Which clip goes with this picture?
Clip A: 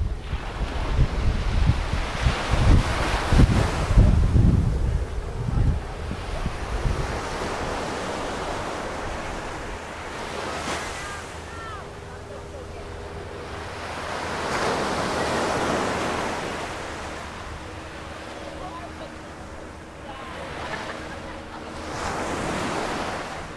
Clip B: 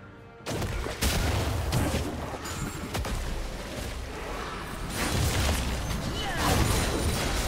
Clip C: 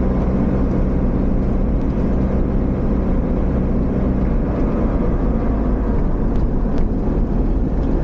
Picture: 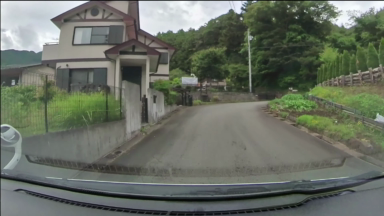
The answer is C